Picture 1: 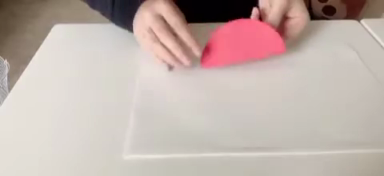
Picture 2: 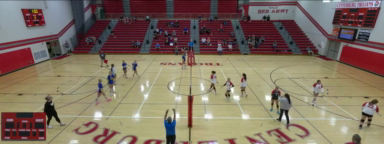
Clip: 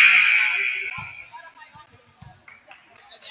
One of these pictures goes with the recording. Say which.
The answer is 2